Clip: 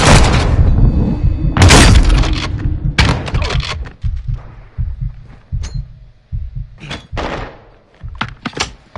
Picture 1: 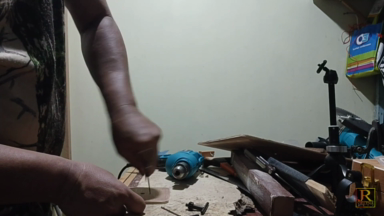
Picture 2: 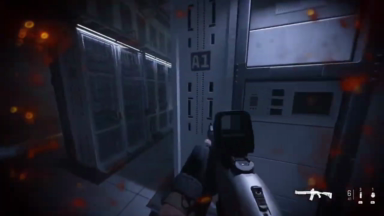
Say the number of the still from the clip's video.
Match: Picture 2